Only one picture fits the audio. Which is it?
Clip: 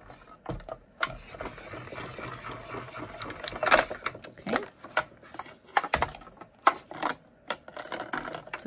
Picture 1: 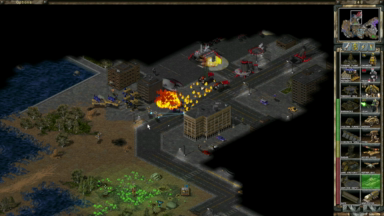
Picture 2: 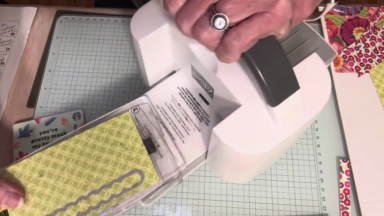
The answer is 2